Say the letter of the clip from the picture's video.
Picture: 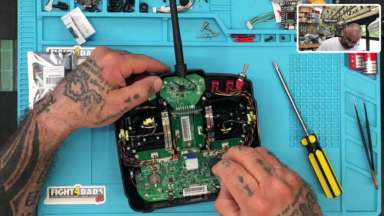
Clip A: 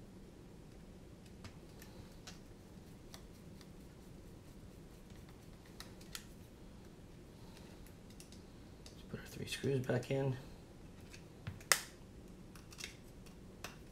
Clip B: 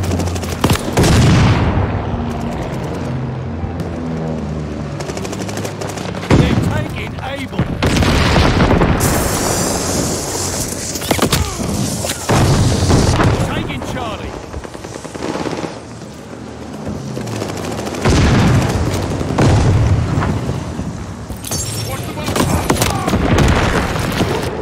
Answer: A